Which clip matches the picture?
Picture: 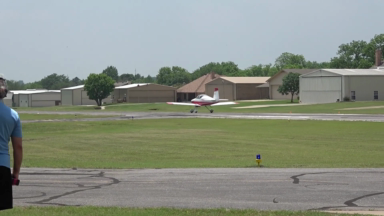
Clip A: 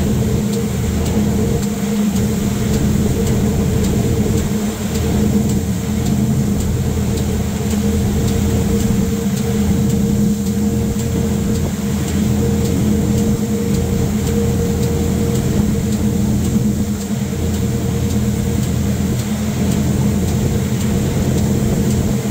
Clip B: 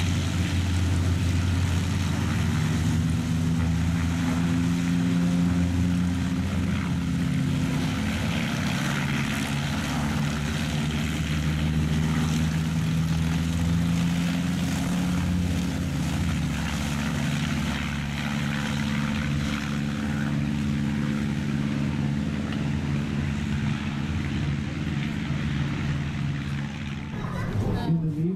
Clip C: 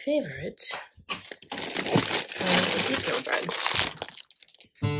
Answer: B